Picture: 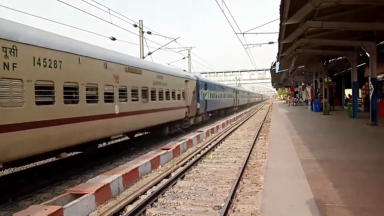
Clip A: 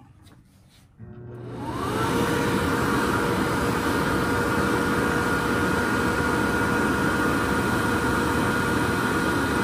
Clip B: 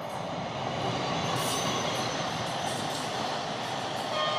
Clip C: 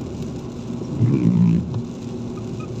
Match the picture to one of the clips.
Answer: B